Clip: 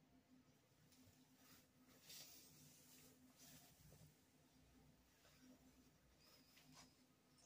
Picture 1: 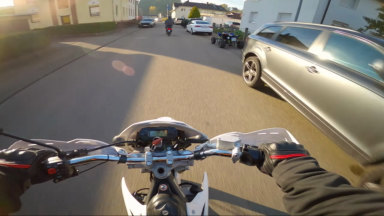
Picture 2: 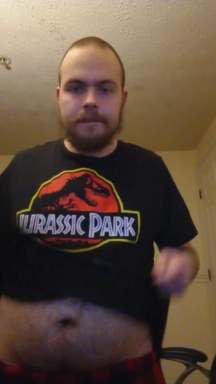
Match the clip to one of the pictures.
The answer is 2